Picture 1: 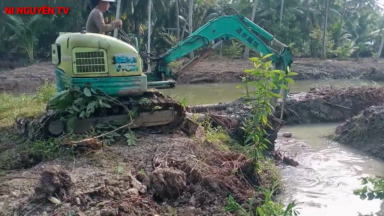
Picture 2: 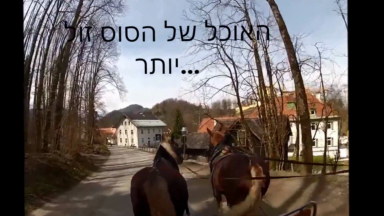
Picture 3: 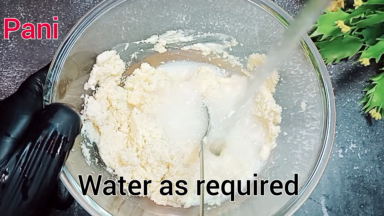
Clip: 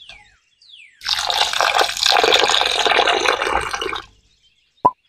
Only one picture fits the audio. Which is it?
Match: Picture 3